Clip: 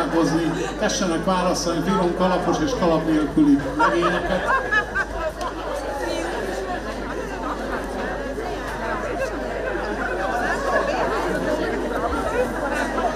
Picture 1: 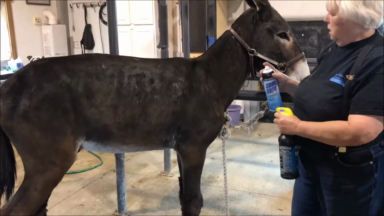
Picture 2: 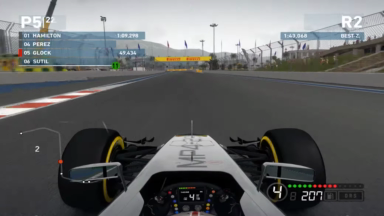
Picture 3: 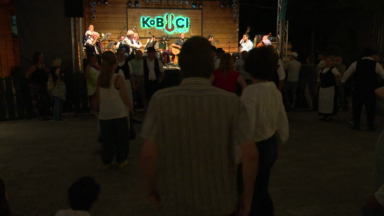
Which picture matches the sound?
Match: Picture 3